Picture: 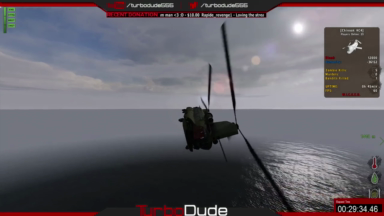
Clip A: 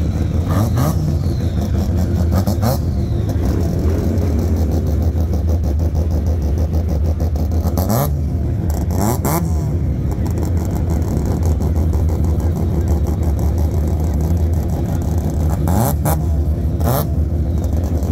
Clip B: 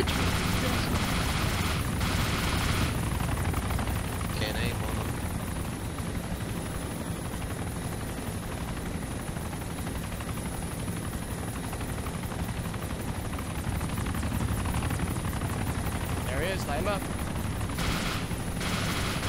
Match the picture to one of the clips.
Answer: B